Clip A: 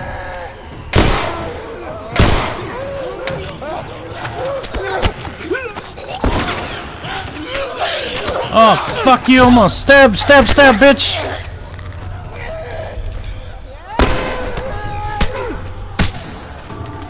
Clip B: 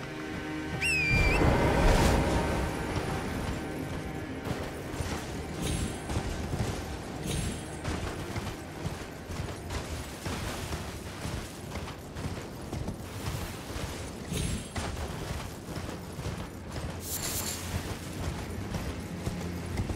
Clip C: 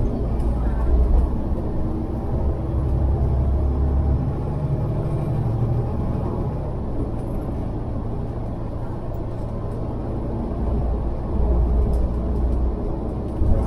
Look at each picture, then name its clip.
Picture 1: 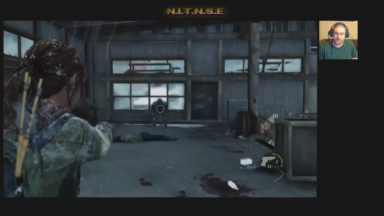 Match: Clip A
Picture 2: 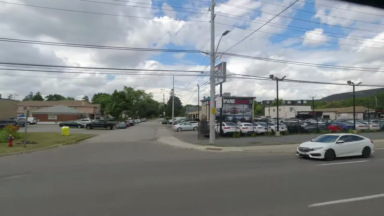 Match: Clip C